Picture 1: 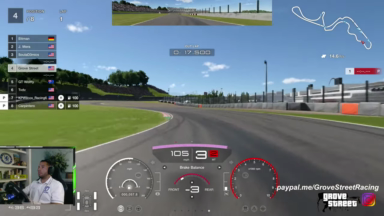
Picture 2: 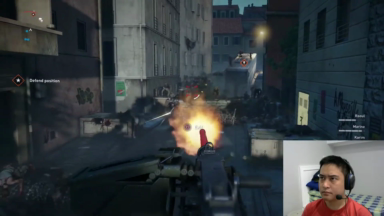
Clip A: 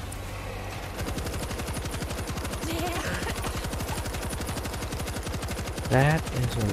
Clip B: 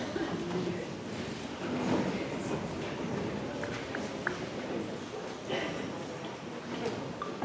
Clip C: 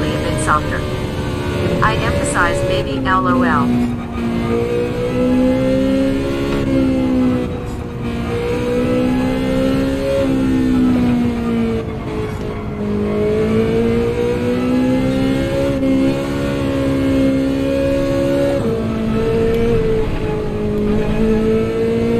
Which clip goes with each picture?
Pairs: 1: C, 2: A